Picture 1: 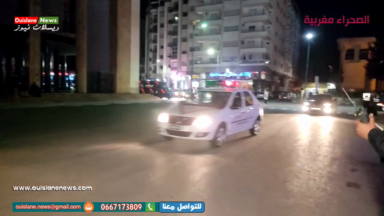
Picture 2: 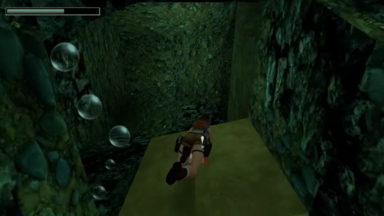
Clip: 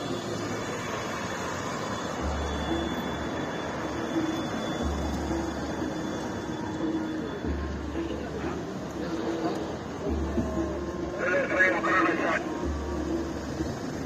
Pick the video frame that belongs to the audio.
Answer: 1